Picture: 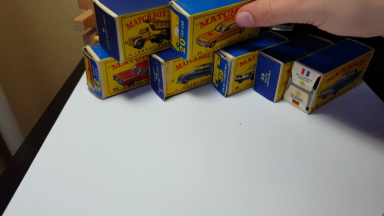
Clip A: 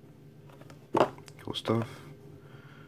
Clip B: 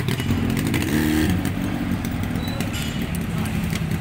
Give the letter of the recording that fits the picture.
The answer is A